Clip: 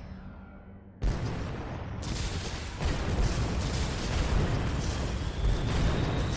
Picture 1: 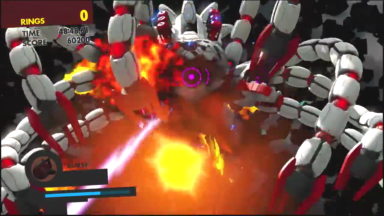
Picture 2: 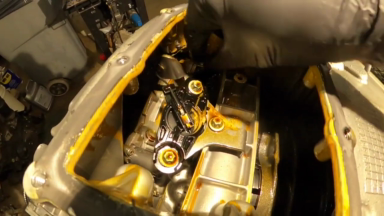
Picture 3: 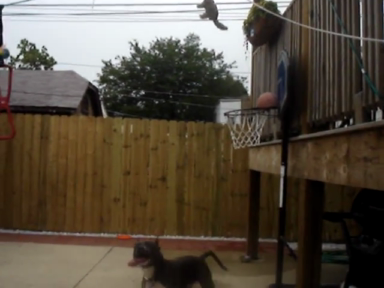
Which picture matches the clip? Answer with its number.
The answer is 1